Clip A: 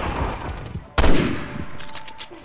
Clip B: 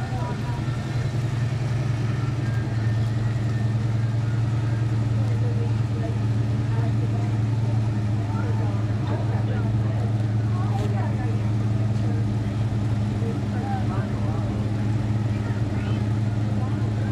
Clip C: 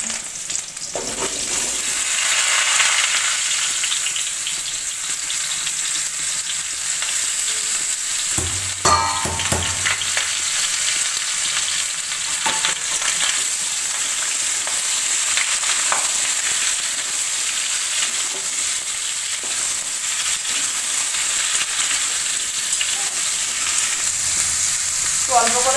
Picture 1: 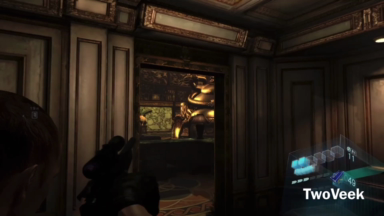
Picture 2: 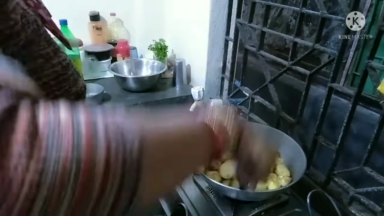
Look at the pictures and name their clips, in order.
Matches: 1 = A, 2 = C